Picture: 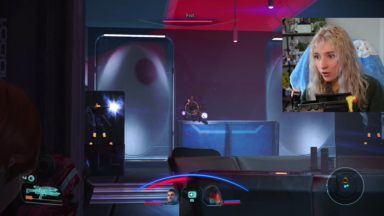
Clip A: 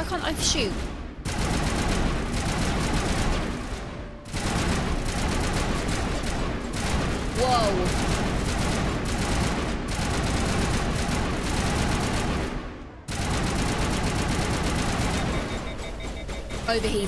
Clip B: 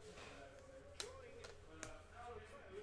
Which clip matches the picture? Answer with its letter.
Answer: A